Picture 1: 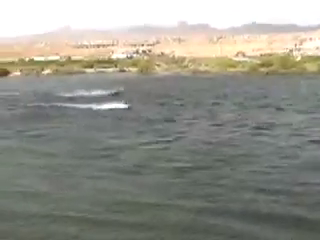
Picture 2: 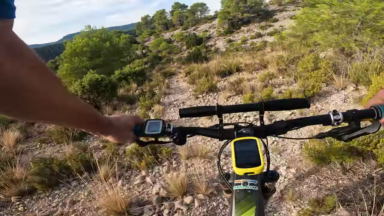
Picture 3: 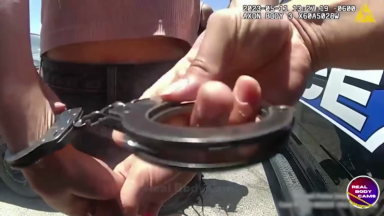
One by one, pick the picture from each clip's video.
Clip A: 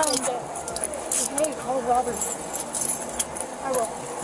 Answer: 3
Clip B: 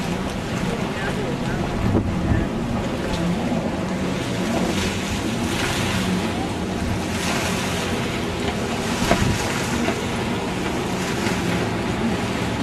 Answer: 1